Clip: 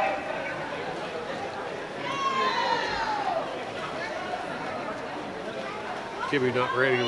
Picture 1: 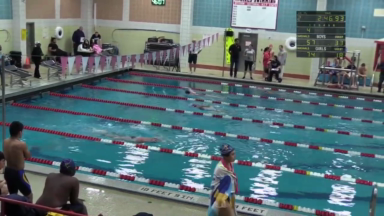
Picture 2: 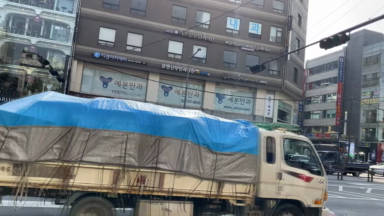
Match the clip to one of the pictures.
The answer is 1